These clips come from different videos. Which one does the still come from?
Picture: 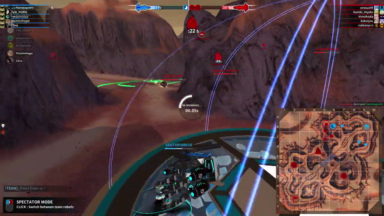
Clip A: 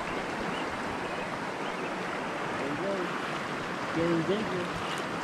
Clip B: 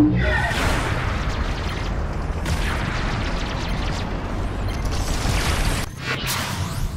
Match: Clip B